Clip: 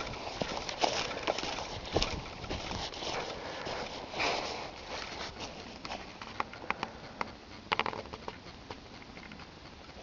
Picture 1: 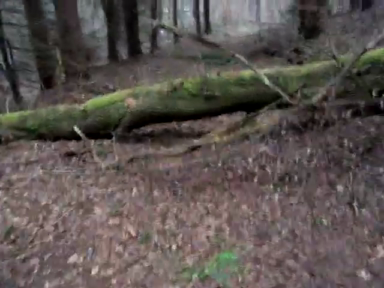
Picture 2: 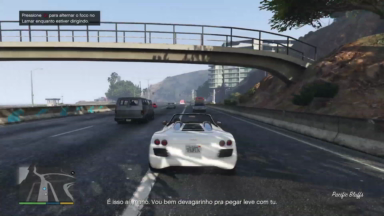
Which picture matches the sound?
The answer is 1